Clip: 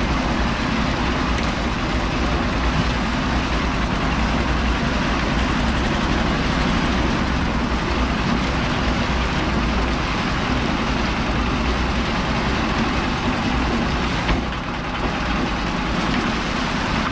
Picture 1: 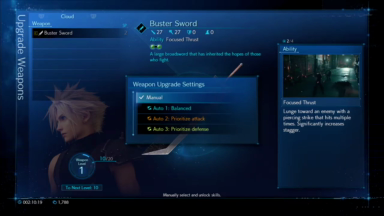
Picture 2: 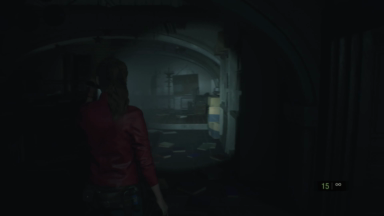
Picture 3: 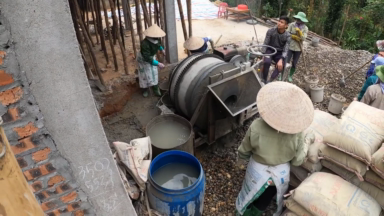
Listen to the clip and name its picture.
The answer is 3